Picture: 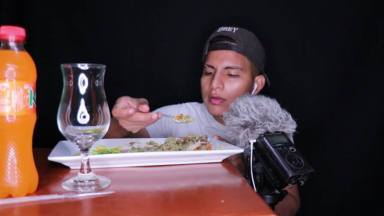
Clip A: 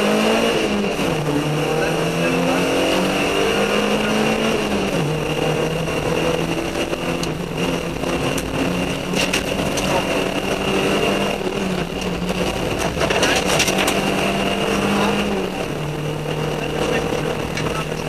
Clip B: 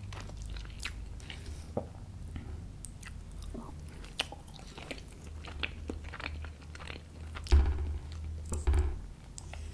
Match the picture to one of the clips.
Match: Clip B